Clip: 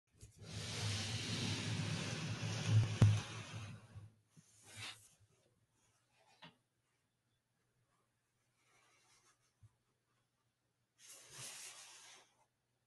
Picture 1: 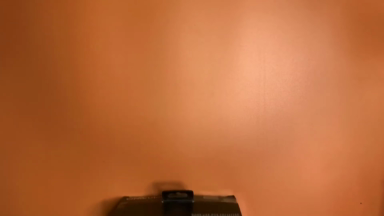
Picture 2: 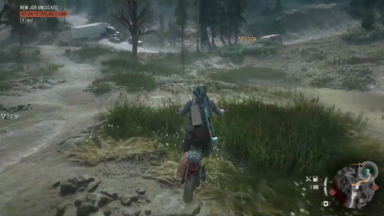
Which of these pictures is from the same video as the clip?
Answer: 1